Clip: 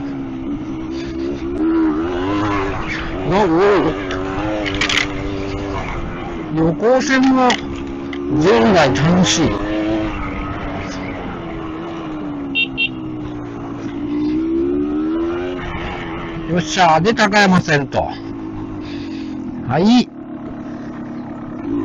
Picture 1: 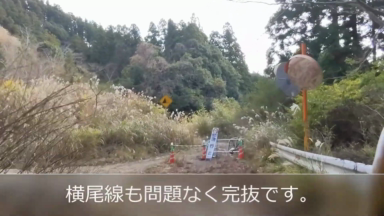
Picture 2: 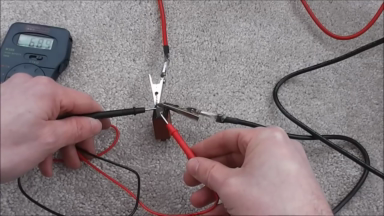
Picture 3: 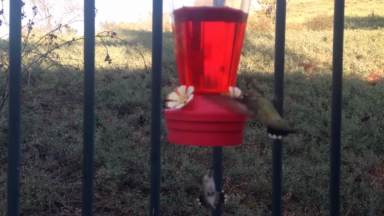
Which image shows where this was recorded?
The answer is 1